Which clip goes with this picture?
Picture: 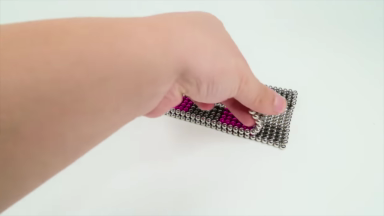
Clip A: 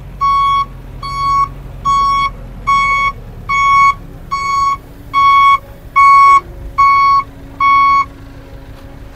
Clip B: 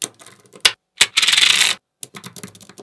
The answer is B